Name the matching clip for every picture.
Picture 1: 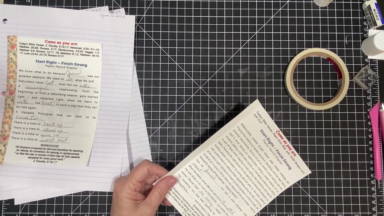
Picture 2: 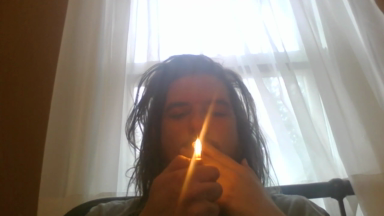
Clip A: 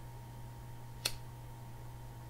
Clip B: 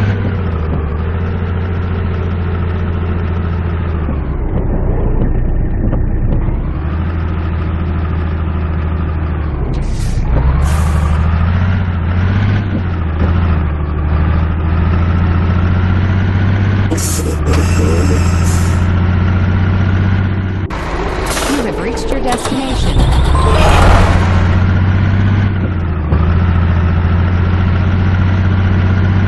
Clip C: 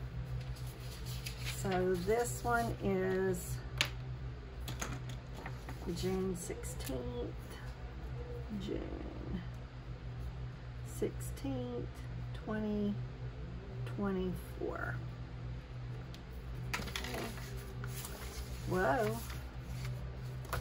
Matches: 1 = C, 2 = A